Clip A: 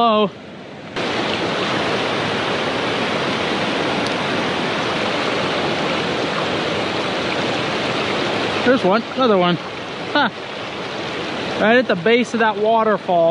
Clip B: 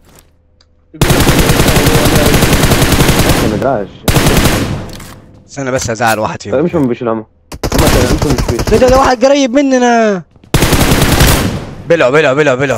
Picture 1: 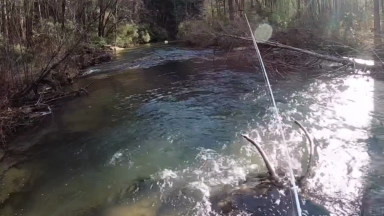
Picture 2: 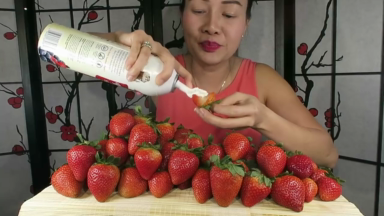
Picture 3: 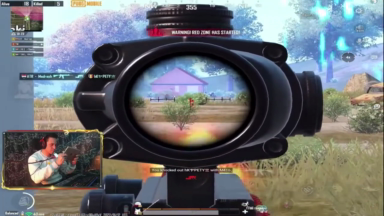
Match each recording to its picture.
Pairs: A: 1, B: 3